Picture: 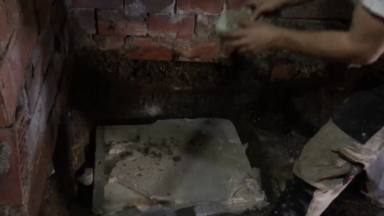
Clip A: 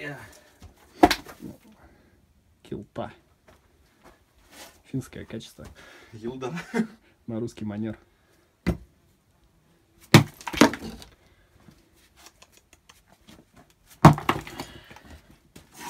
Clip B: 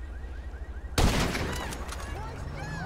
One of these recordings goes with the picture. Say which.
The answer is A